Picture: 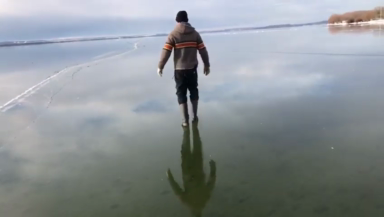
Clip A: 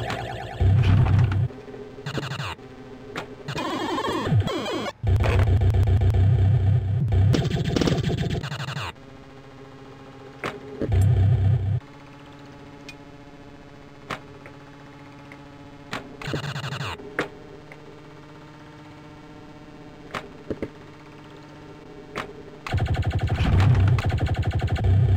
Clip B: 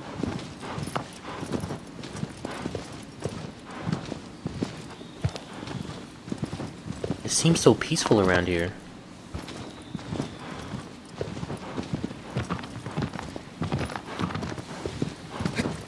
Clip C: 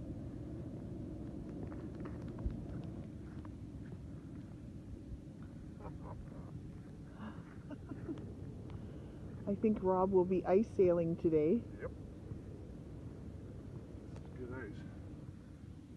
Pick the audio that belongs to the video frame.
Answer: C